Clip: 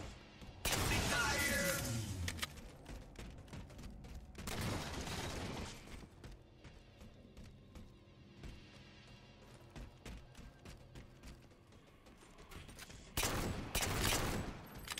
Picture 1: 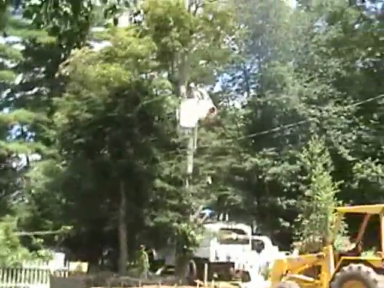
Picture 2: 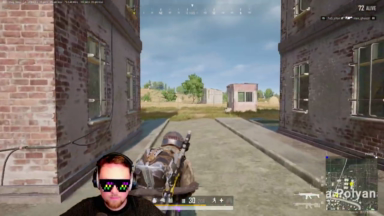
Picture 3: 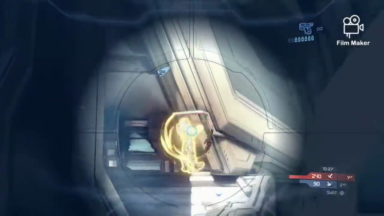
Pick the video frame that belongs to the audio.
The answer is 3